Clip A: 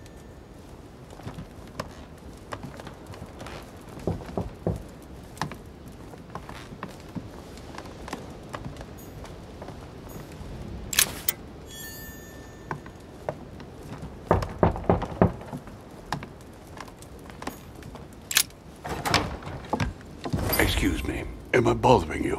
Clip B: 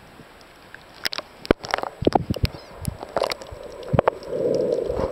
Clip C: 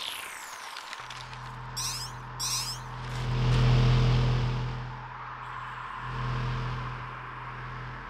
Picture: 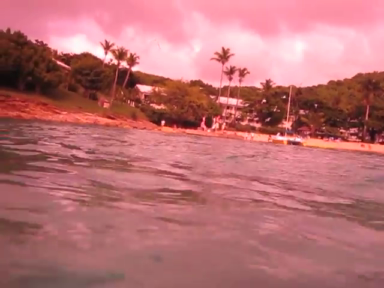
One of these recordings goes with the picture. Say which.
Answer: B